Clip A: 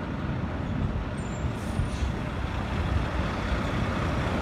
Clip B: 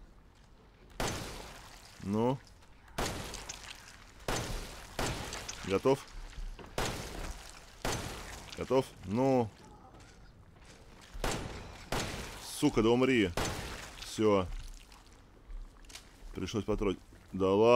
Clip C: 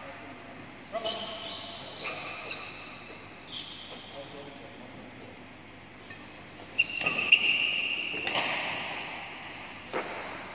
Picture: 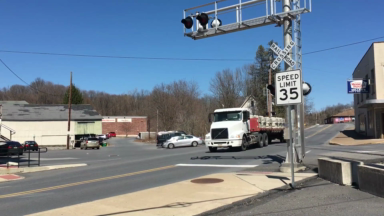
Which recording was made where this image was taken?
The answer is A